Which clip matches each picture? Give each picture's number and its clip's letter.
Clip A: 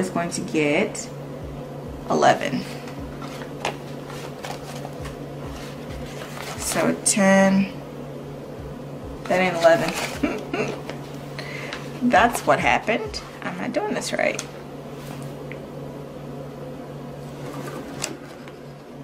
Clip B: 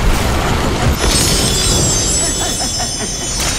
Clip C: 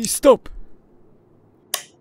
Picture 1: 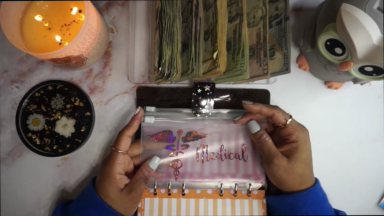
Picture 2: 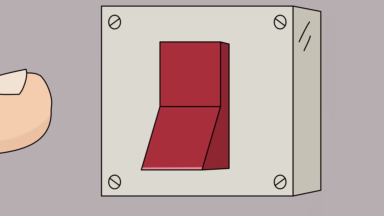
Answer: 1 A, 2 C